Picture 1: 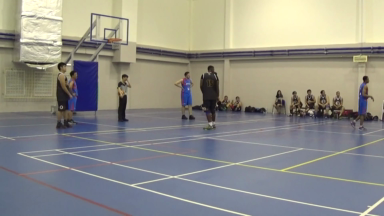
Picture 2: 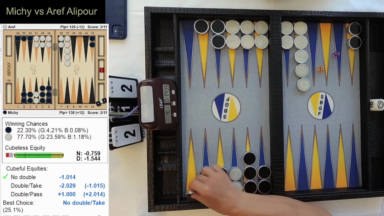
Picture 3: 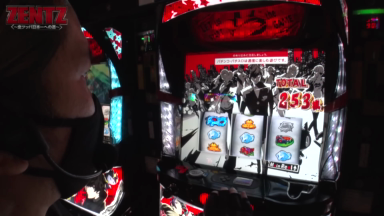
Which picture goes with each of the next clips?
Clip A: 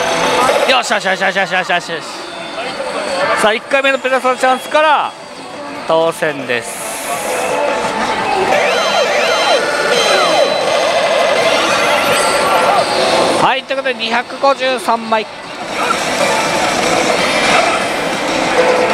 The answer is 3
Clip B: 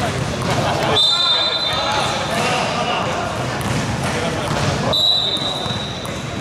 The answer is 1